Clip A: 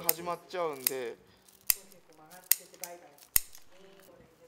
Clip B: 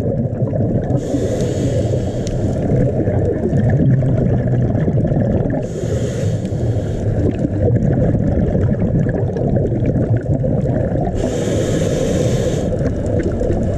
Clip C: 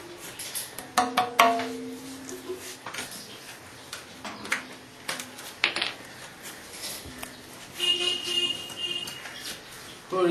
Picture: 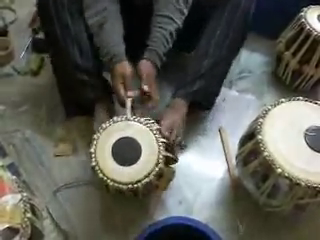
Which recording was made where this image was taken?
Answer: C